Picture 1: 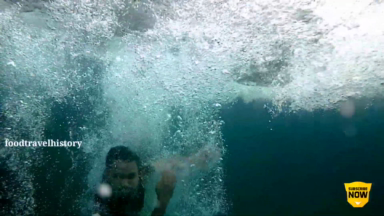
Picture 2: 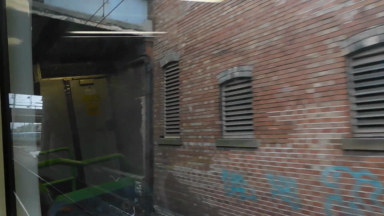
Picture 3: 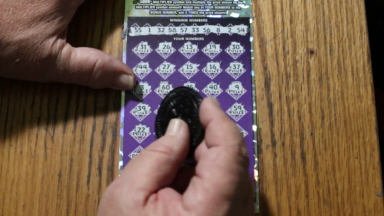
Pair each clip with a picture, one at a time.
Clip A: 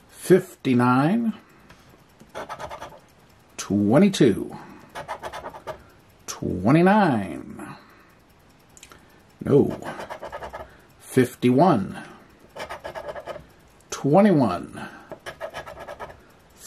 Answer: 3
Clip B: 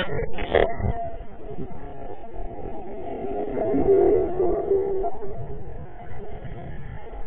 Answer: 1